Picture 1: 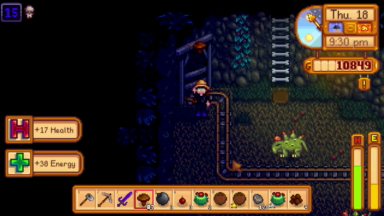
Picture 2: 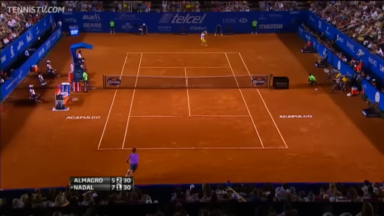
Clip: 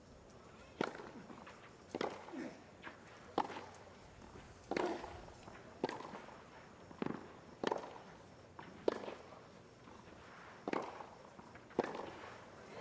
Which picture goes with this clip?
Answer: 2